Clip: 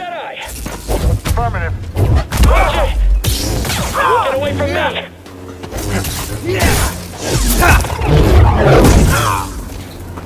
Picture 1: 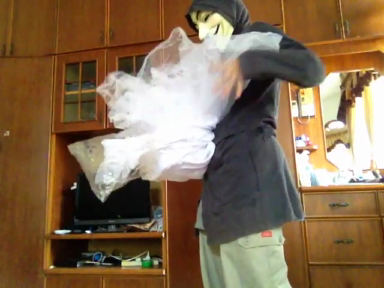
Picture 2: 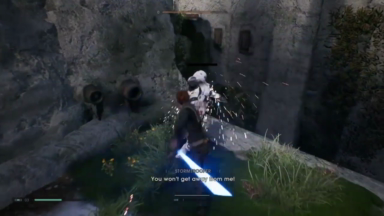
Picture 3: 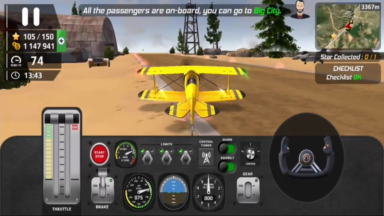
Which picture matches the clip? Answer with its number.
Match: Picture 2